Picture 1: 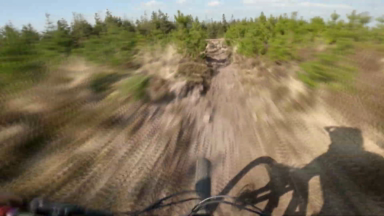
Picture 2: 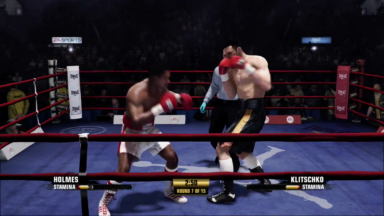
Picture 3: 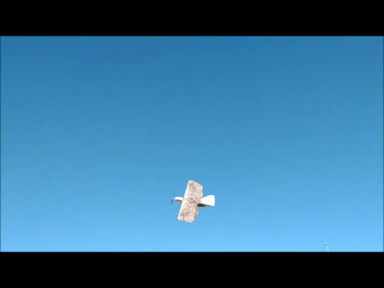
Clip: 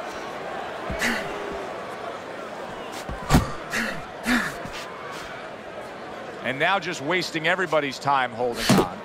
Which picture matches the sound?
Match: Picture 2